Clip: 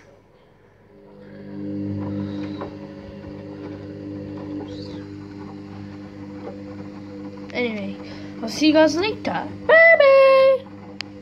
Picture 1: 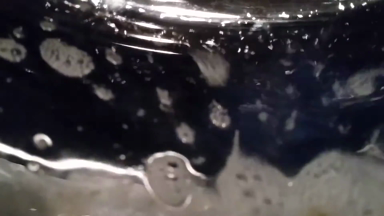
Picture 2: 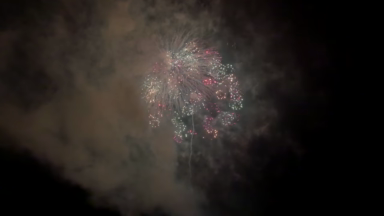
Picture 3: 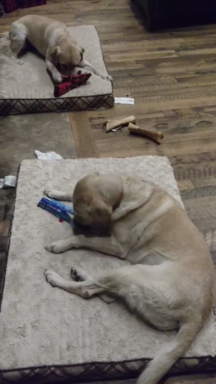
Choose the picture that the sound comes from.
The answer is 1